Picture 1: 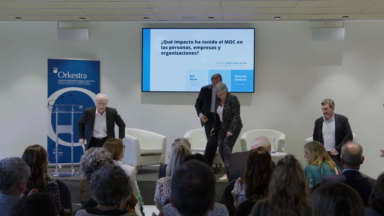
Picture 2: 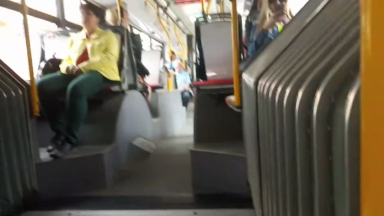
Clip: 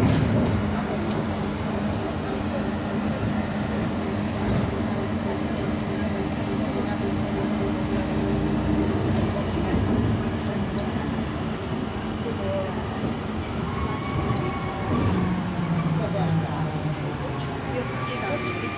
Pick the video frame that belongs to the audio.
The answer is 2